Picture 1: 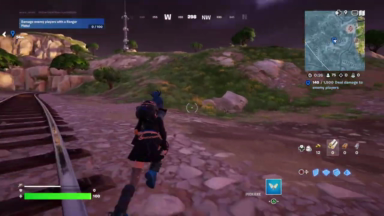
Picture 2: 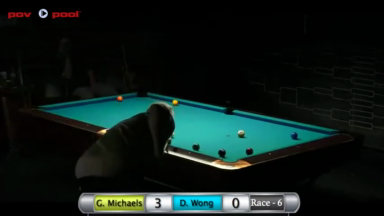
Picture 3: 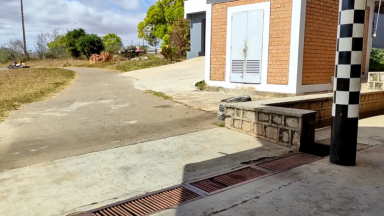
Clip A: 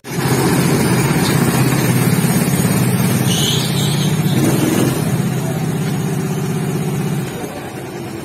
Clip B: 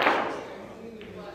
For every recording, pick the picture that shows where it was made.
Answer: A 3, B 2